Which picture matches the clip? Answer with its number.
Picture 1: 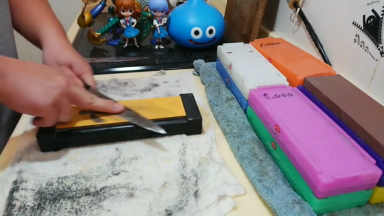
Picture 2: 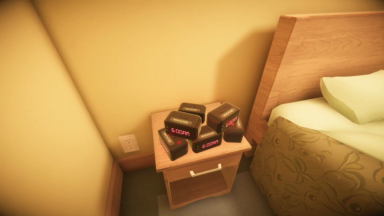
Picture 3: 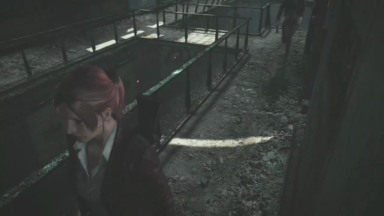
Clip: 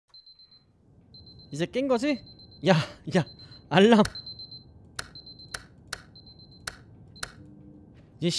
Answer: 2